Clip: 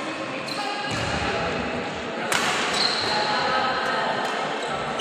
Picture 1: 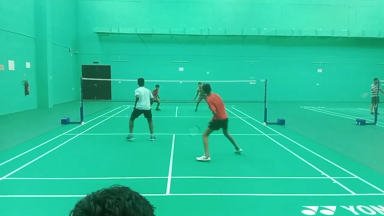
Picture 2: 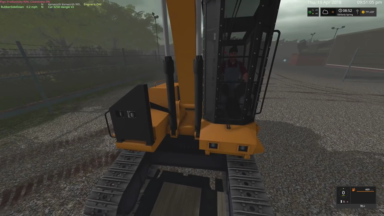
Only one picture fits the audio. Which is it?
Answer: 1